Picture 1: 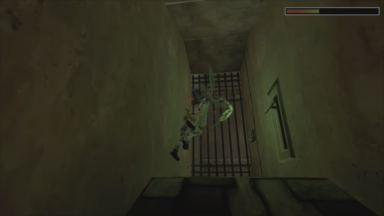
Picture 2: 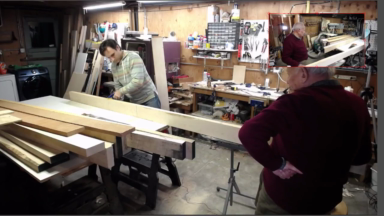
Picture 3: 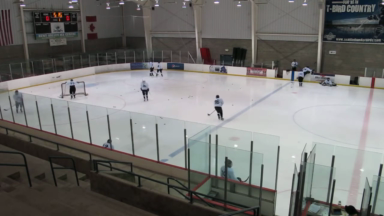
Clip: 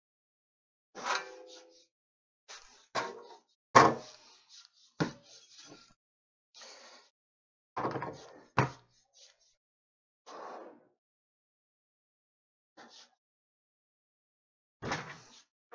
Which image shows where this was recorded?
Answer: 2